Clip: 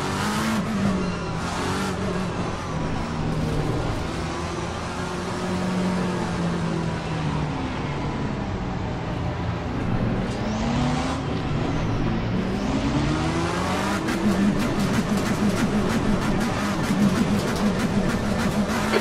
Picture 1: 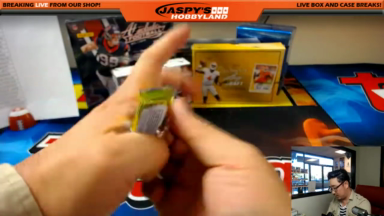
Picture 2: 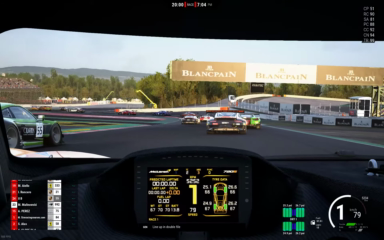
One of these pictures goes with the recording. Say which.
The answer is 2